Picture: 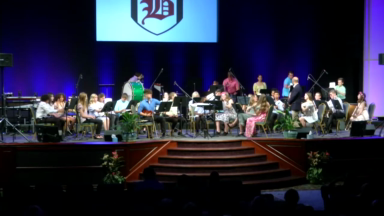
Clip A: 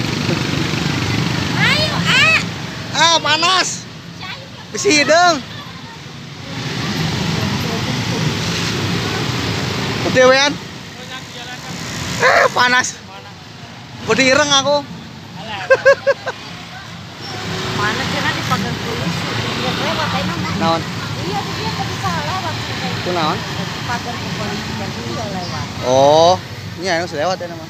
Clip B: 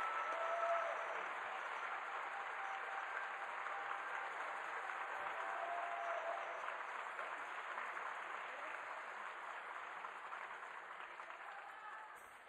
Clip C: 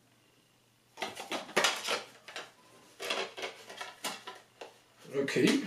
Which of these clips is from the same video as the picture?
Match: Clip B